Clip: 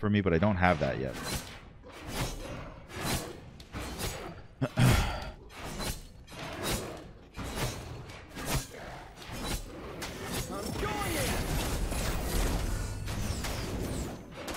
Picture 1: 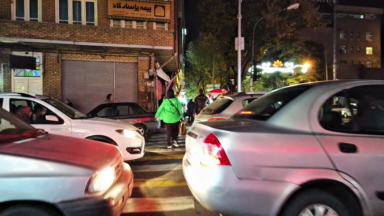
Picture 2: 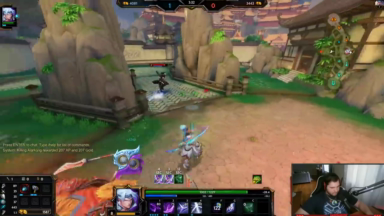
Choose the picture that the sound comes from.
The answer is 2